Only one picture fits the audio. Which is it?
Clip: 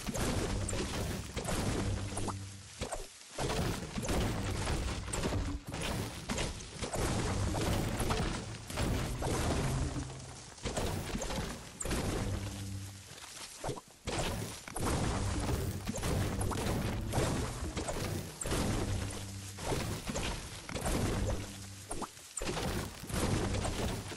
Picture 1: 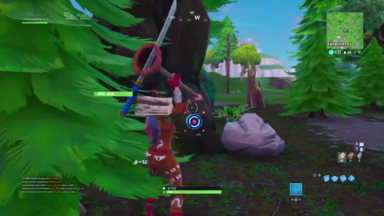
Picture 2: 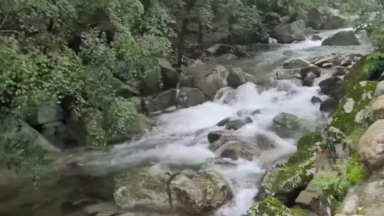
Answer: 1